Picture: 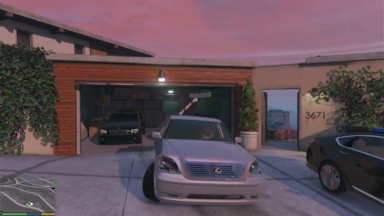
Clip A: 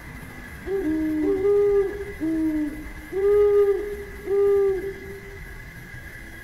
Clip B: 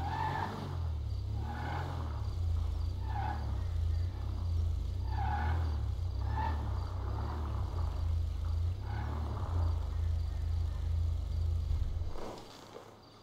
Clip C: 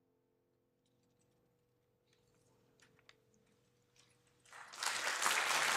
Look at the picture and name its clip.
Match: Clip B